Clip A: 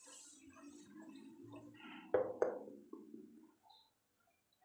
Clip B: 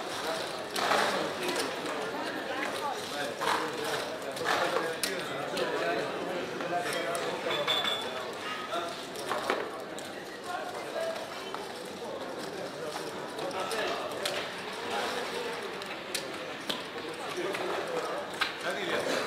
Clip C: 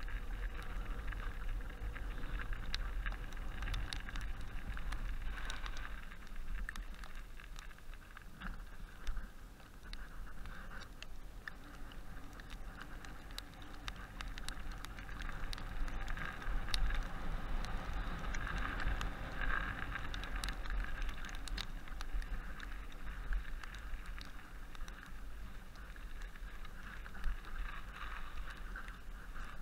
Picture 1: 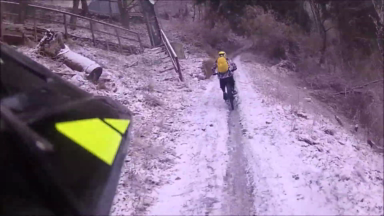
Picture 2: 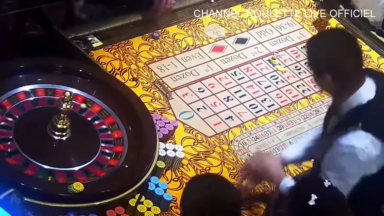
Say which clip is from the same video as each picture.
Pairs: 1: C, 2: B